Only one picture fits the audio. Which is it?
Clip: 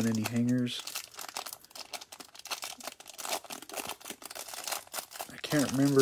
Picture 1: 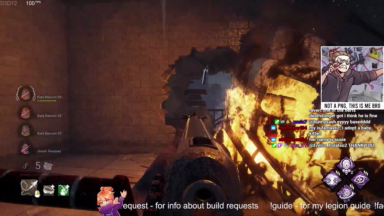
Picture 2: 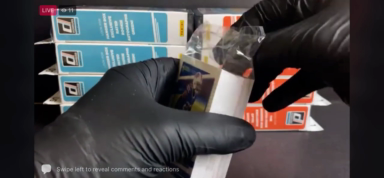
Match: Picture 2